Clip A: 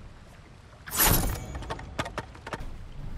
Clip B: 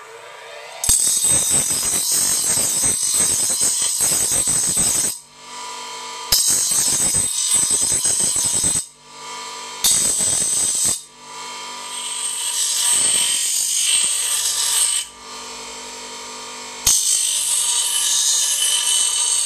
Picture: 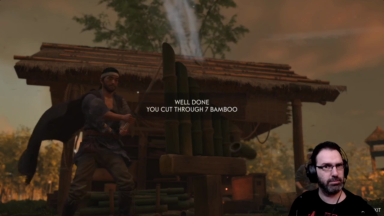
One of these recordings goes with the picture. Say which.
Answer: A